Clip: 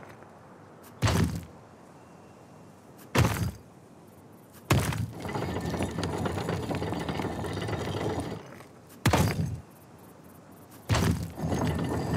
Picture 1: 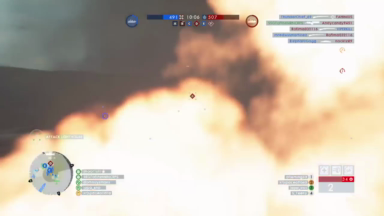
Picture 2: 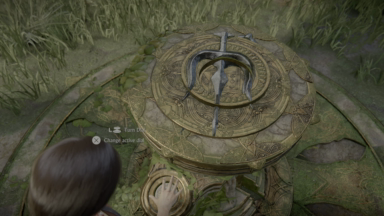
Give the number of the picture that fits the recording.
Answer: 2